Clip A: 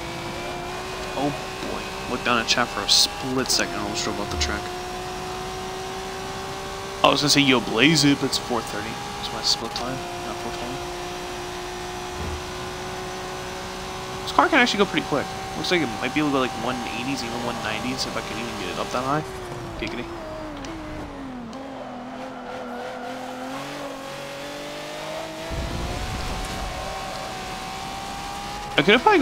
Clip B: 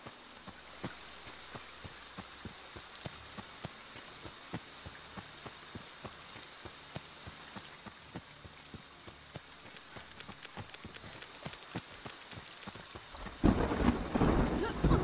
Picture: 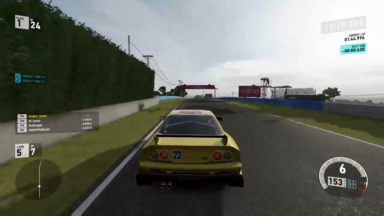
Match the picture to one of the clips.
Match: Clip A